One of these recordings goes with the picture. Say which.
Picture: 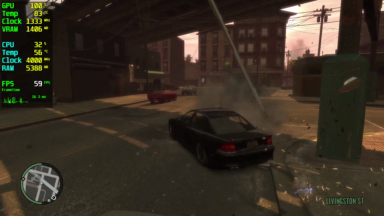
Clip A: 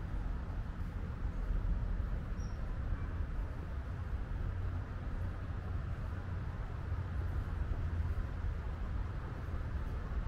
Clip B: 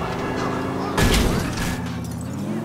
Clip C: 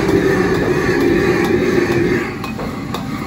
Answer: B